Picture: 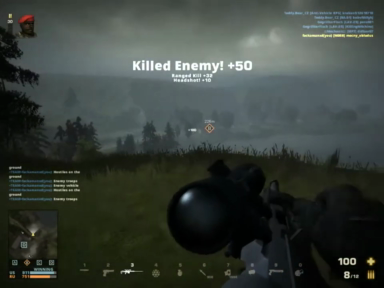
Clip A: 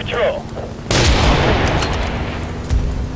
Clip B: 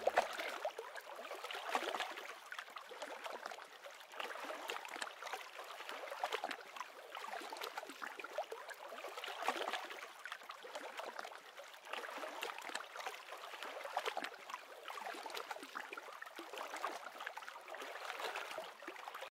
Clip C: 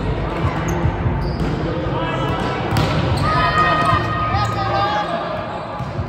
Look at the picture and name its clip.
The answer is A